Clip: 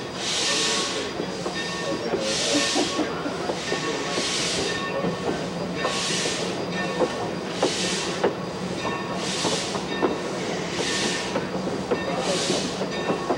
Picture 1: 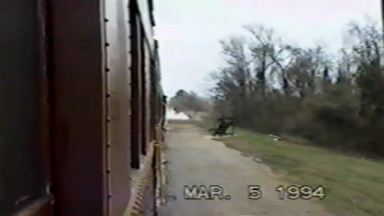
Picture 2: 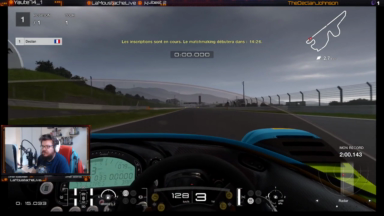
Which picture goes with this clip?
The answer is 1